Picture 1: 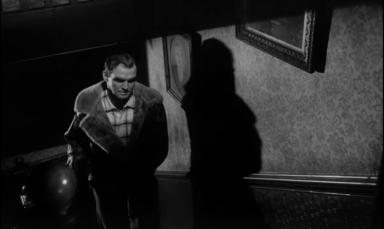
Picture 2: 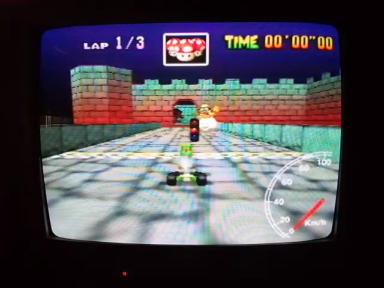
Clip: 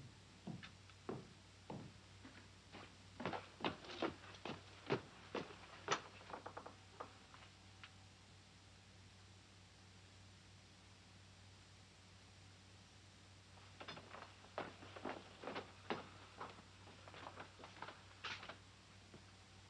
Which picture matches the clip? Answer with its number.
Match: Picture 1